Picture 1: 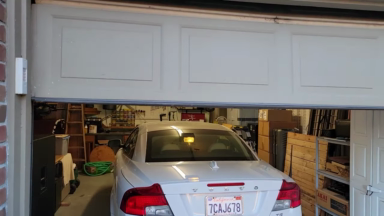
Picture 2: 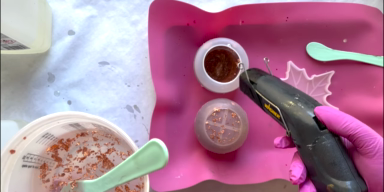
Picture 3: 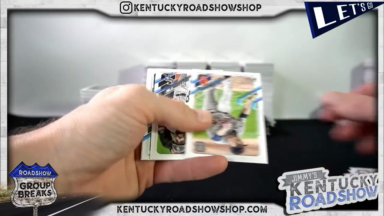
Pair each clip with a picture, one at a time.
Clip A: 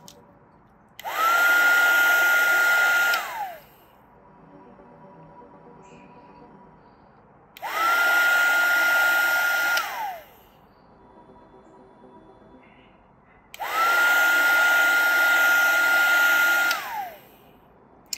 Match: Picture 2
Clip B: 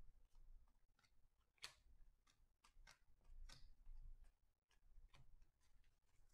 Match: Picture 3